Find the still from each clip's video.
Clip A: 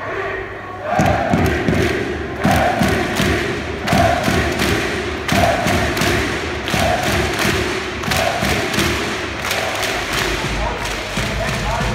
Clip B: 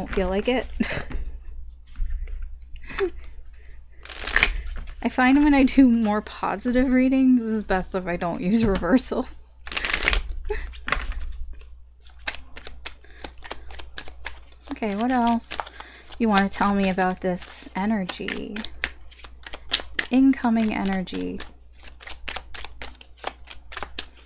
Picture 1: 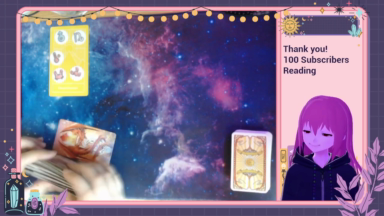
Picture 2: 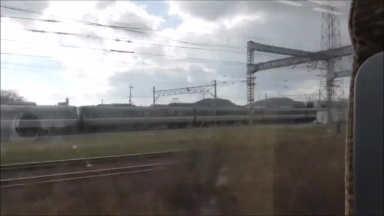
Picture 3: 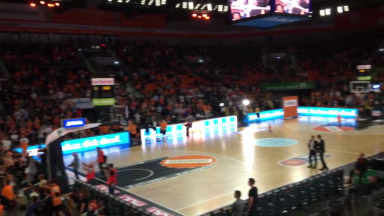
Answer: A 3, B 1